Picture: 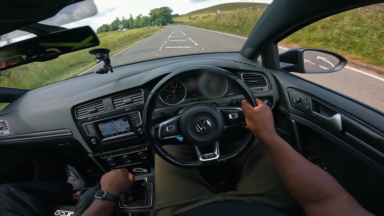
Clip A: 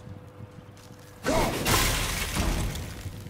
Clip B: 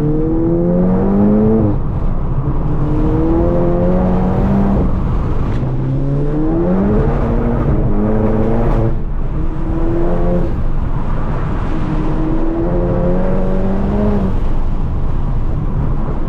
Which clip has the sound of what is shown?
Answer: B